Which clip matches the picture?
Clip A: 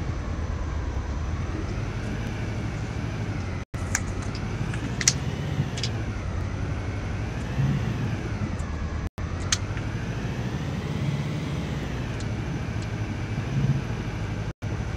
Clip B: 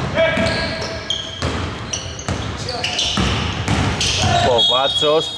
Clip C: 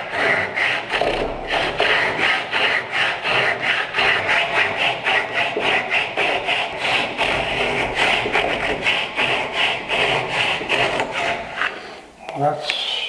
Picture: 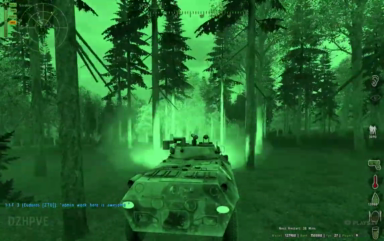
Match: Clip A